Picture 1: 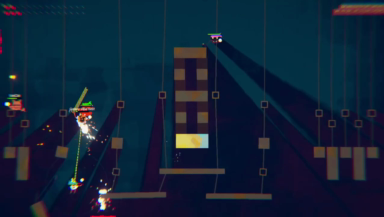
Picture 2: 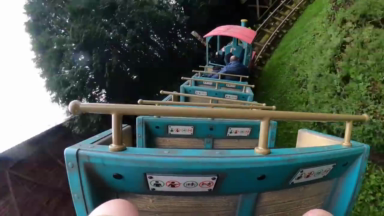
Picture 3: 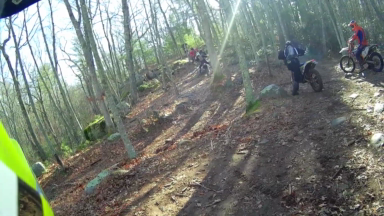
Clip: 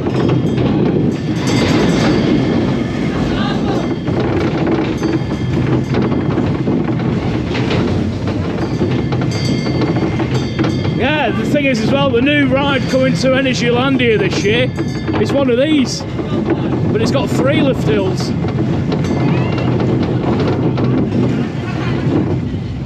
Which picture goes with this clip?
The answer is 2